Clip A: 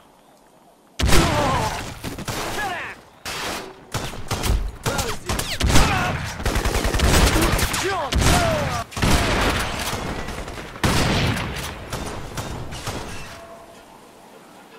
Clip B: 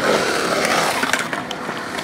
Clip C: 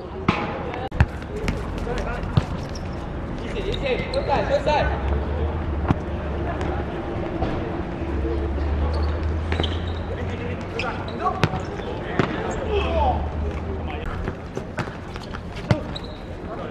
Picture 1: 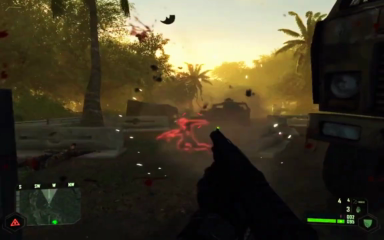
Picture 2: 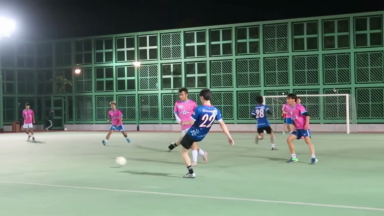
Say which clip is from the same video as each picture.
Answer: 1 A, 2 C